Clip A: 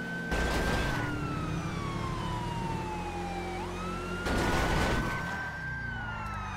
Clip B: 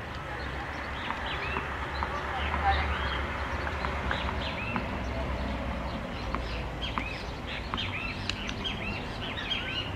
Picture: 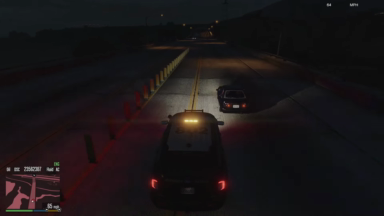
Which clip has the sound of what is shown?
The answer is A